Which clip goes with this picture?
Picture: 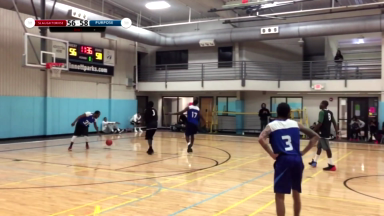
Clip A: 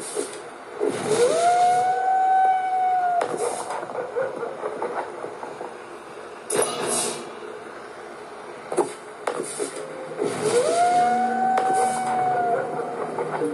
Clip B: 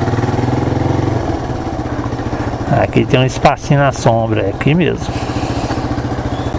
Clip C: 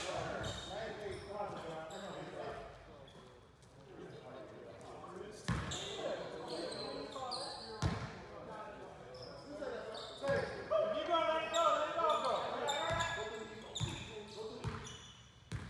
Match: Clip C